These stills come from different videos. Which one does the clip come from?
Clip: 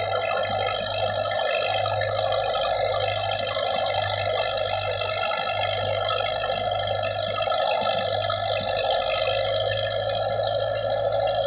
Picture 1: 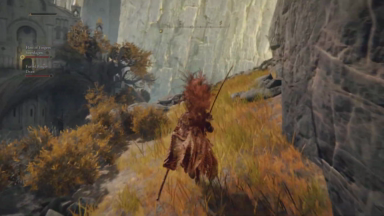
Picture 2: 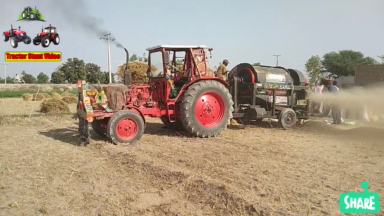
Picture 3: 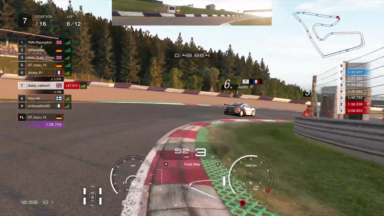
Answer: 2